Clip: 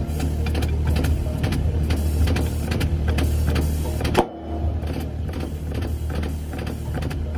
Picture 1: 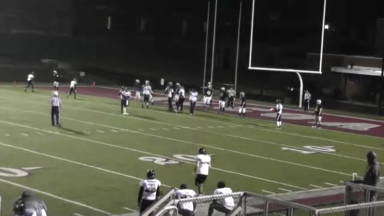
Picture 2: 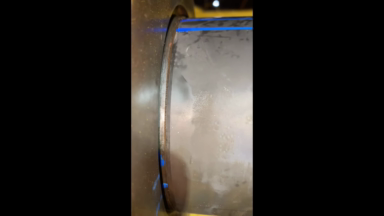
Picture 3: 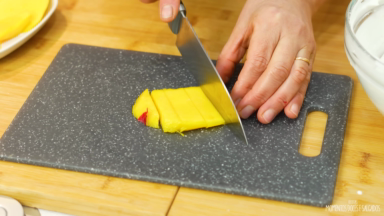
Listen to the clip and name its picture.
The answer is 2